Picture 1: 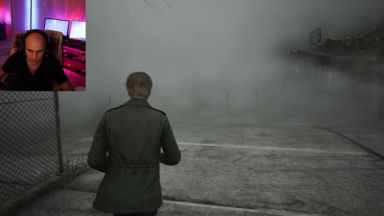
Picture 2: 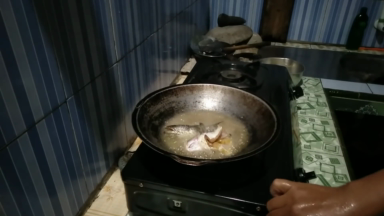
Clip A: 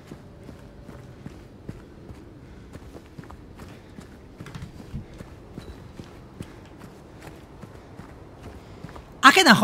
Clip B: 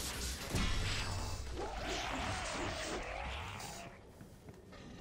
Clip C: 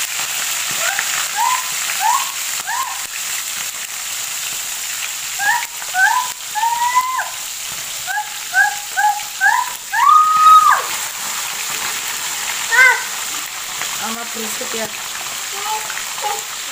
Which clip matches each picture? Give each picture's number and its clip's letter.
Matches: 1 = A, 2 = C